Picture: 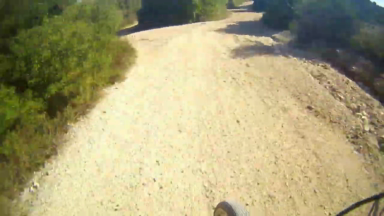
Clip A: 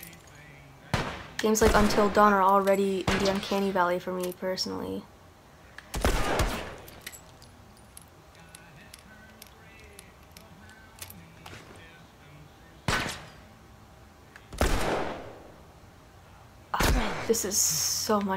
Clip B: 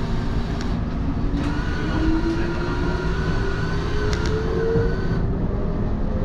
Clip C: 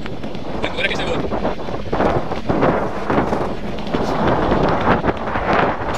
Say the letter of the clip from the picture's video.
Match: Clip C